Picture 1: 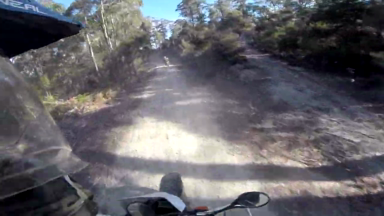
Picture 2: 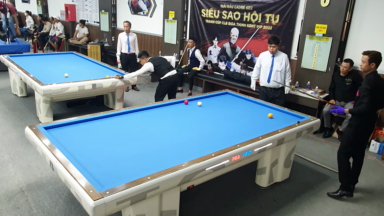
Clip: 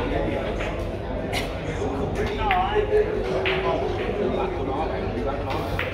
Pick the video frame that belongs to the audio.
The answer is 2